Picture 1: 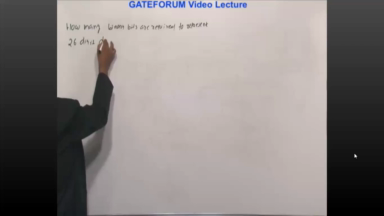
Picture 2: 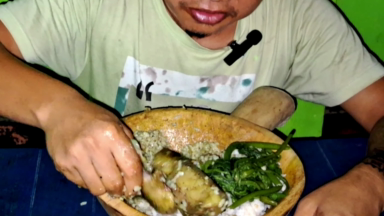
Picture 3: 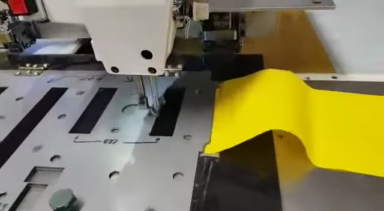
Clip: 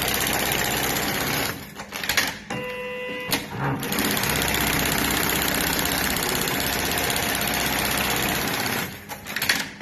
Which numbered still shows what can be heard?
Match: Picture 3